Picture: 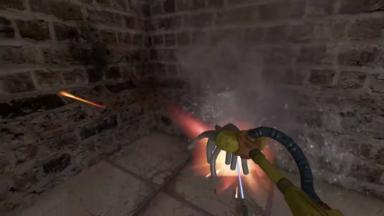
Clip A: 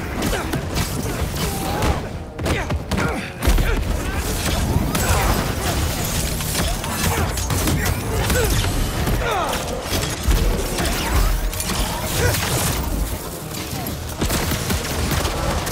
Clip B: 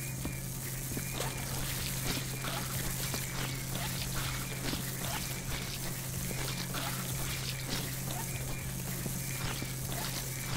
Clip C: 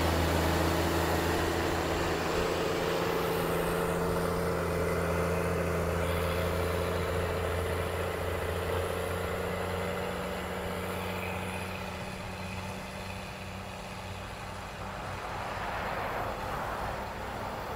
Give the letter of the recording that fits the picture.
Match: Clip B